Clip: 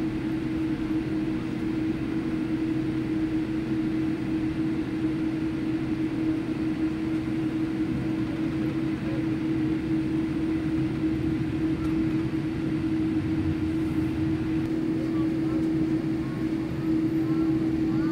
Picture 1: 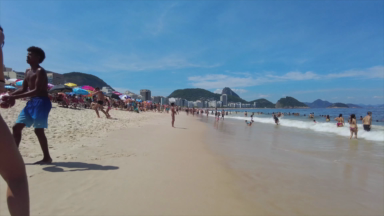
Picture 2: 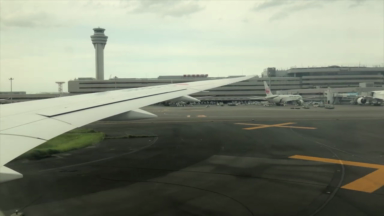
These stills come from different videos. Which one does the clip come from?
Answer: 2